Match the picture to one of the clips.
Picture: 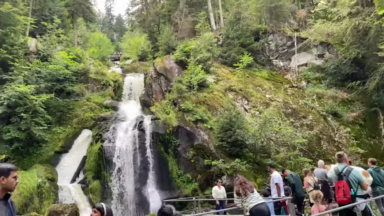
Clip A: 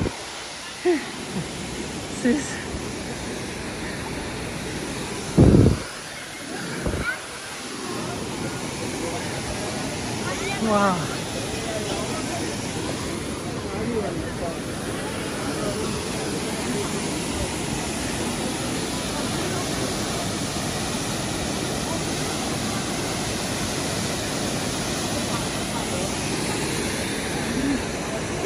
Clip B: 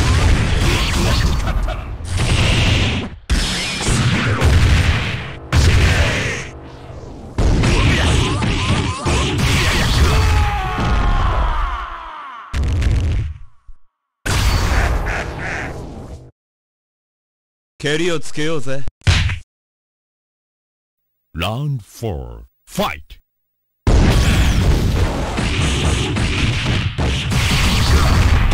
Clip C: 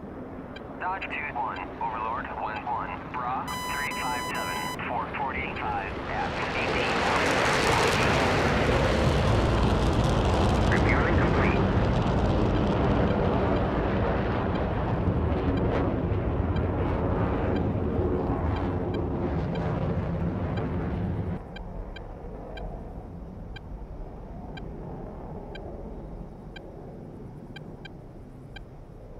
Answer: A